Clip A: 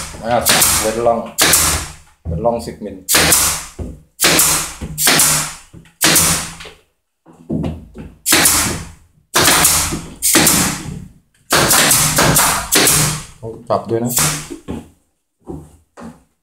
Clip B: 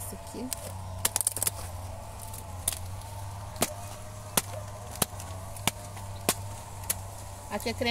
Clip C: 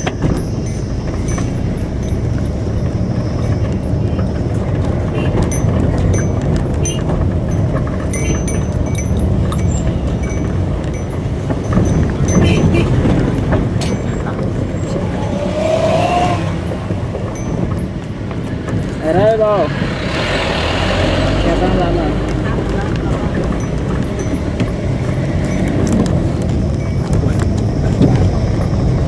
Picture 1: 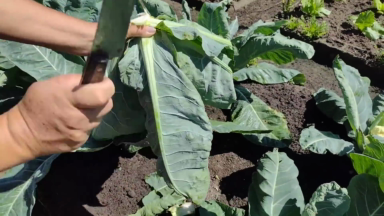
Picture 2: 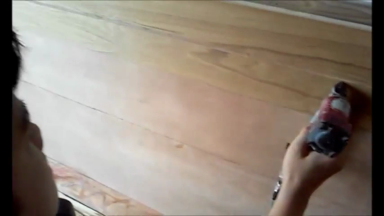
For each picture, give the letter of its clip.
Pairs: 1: B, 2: A